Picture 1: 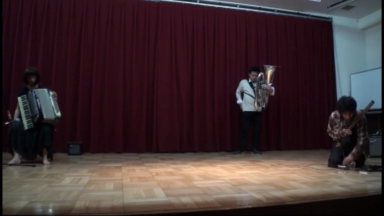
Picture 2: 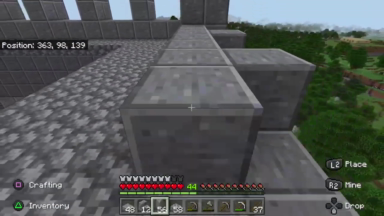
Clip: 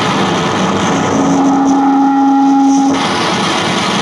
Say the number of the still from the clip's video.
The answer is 1